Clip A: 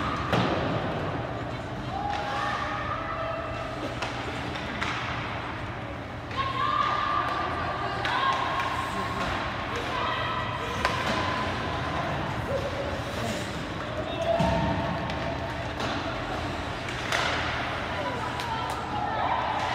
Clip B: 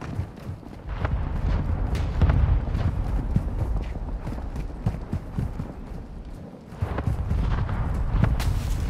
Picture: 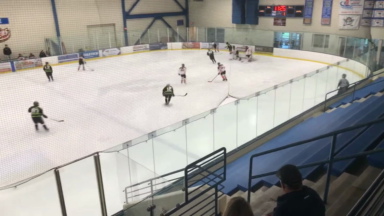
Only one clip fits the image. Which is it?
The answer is A